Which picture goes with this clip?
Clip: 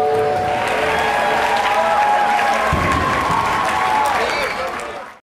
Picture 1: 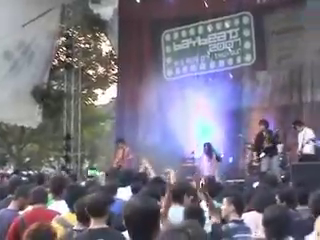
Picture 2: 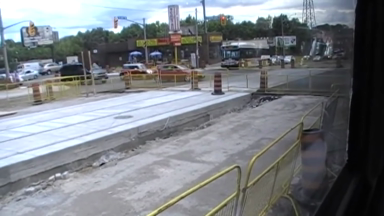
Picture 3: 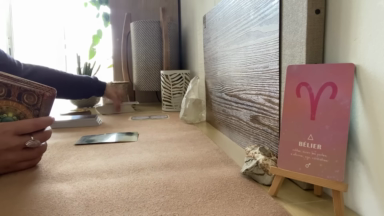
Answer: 1